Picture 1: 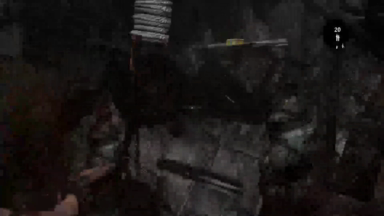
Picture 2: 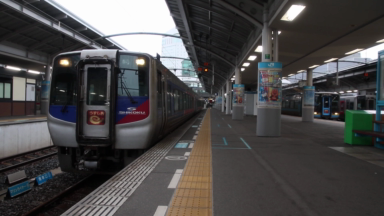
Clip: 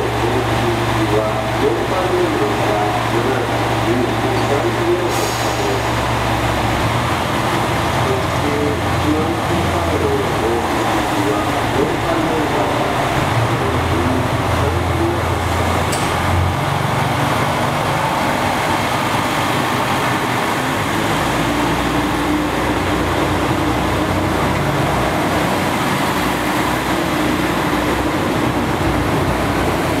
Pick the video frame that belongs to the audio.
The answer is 2